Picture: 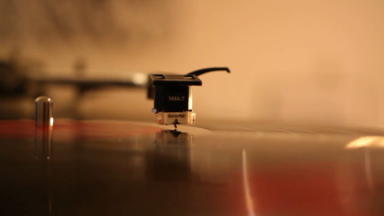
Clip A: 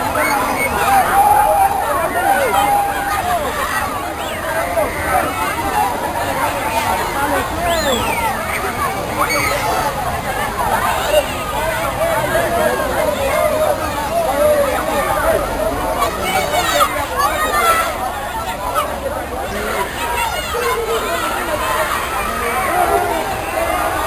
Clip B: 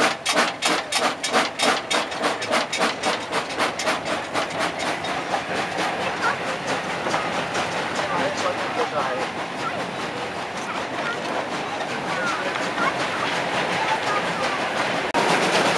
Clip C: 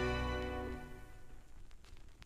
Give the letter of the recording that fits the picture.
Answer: C